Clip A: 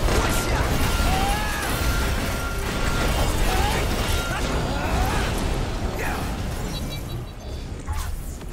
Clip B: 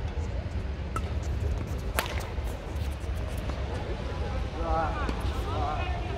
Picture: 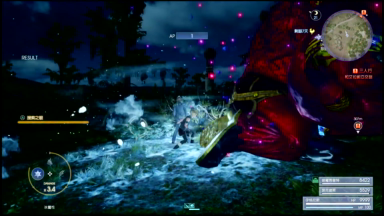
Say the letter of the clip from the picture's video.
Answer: A